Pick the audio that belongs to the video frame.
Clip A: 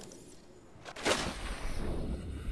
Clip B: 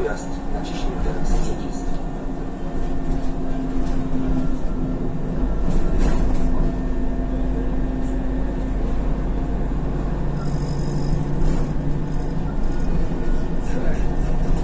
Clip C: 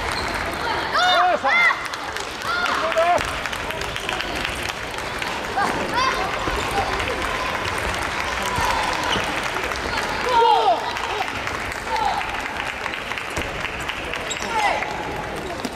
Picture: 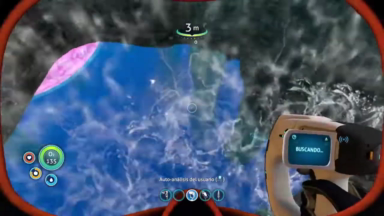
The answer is A